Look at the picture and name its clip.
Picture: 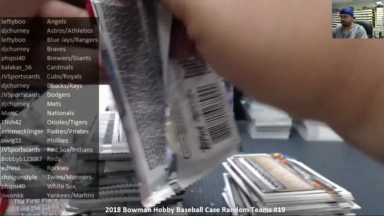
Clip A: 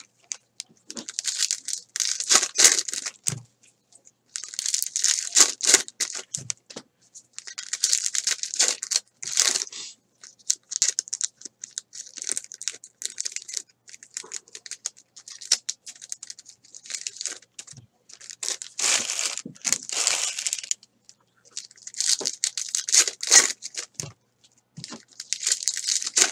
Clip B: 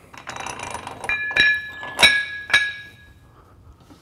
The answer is A